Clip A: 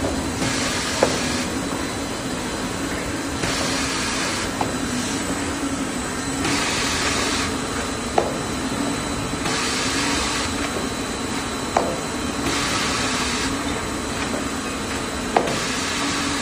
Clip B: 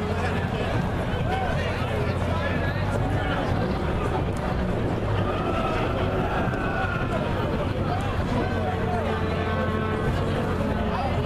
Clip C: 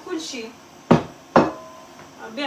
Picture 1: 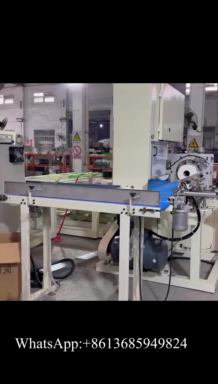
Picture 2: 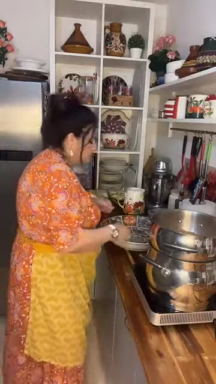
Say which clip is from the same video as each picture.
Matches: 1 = A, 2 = C